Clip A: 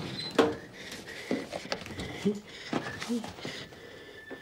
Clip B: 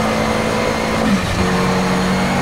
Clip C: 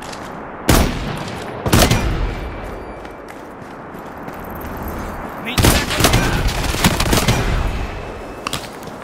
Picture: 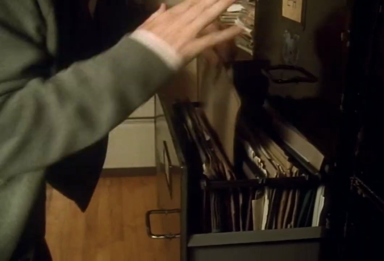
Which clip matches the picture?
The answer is A